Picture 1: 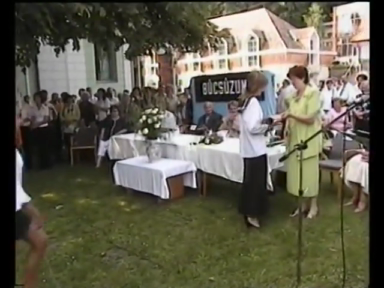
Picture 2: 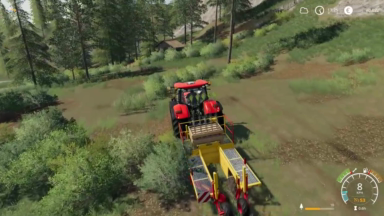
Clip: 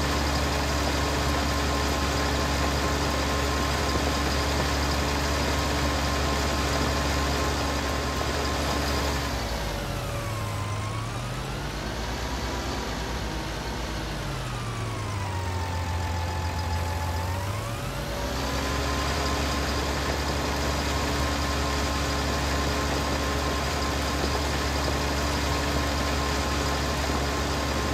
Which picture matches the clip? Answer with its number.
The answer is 2